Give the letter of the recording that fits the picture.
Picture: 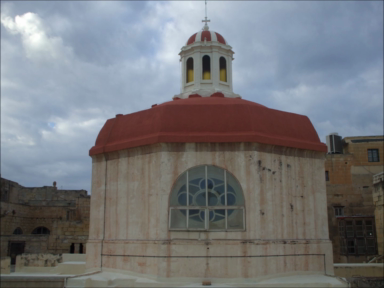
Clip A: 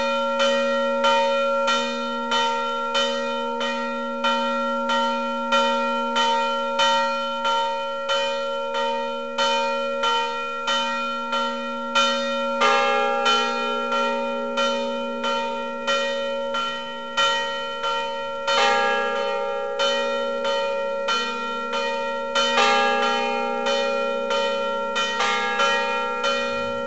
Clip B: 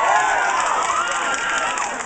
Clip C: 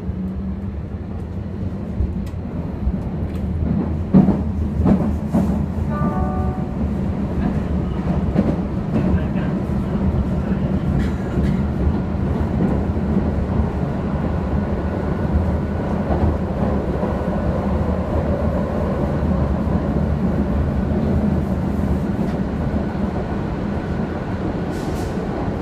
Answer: A